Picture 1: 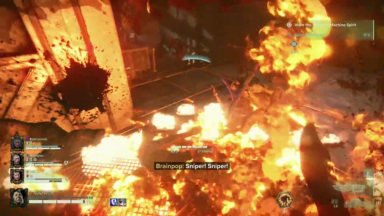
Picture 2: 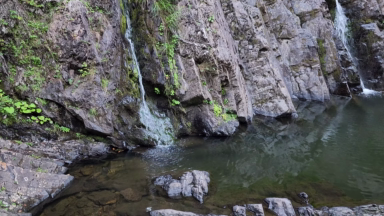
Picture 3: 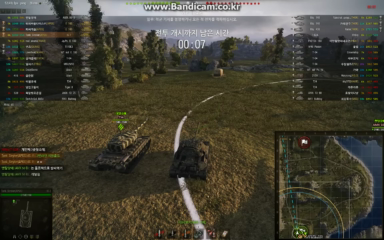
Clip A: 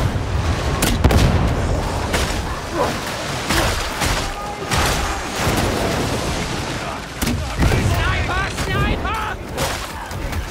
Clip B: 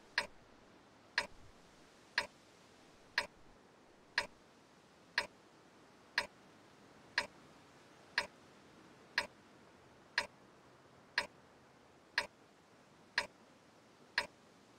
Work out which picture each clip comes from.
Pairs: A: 1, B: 3